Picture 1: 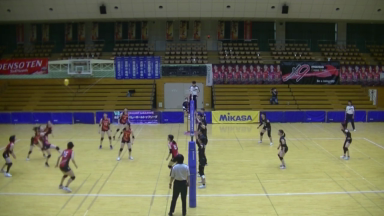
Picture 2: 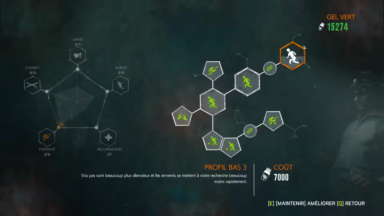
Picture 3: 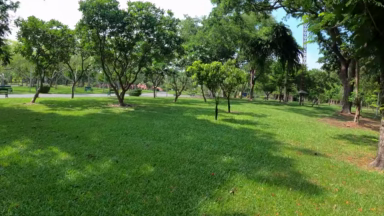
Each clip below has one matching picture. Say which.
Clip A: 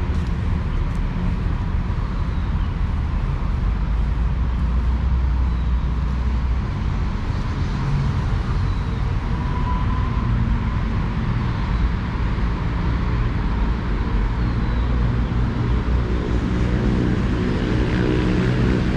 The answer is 3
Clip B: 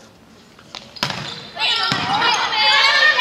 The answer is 1